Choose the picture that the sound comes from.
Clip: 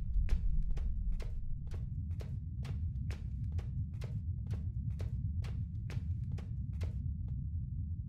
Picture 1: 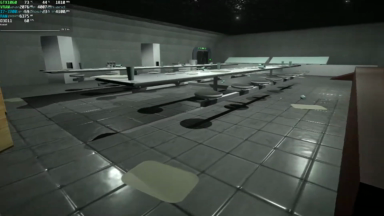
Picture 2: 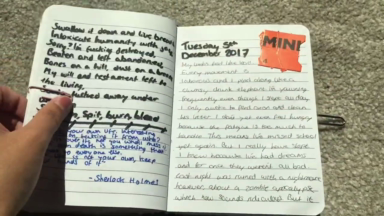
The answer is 1